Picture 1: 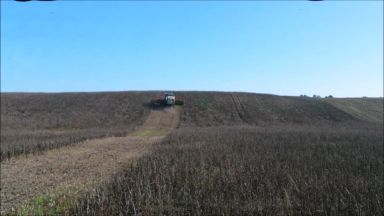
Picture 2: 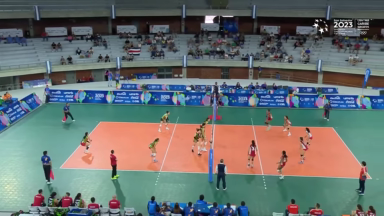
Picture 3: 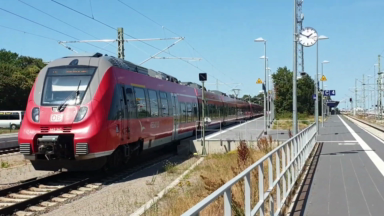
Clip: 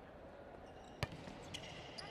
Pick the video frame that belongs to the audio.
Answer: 2